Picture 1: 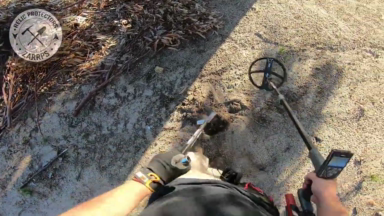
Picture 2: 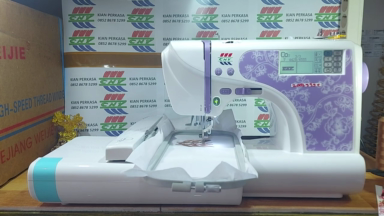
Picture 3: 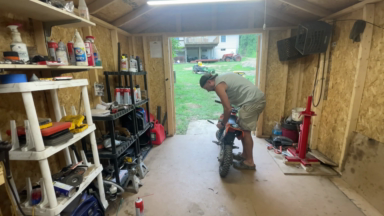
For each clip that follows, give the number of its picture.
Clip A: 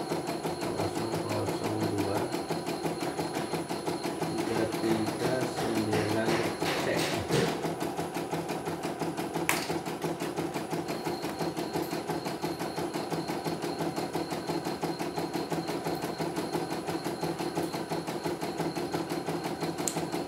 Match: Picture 2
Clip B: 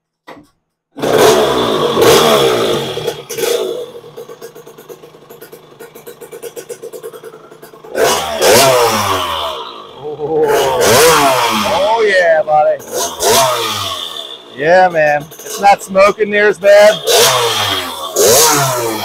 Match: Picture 3